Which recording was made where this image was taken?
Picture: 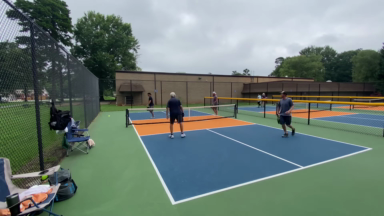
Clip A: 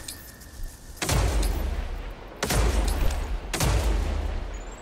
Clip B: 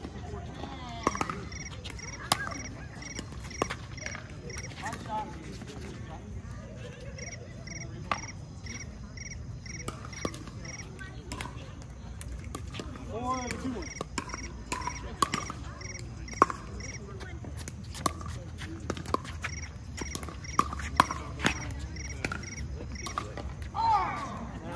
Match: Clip B